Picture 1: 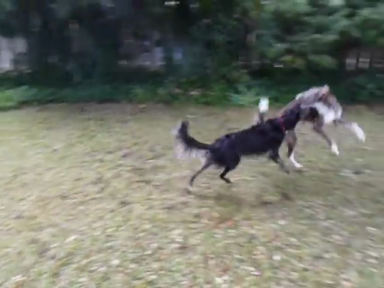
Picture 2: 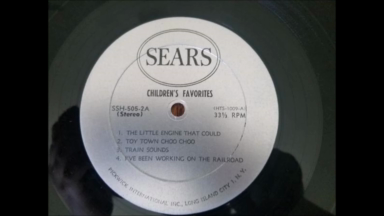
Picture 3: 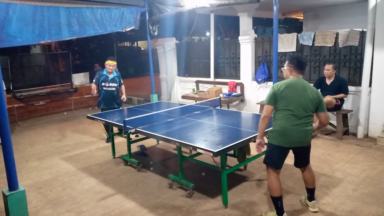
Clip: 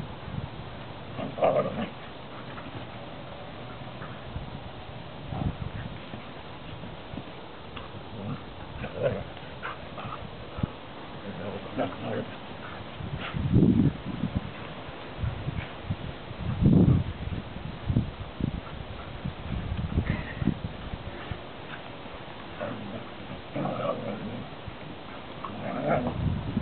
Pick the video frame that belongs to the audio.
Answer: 1